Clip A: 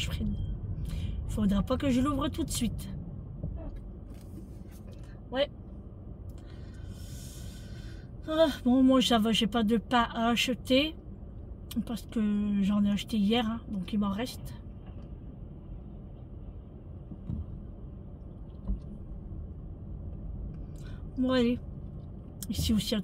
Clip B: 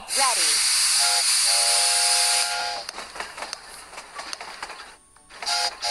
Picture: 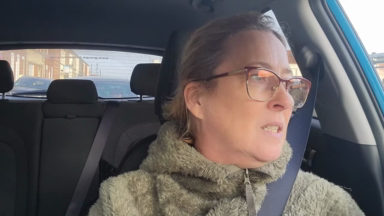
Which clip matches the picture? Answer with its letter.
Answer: A